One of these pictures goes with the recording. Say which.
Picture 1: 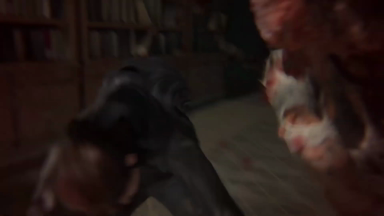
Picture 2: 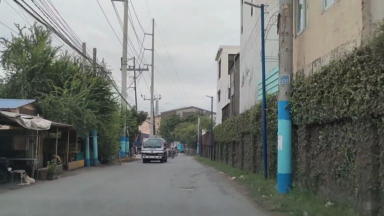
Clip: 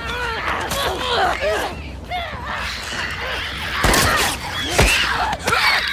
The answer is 1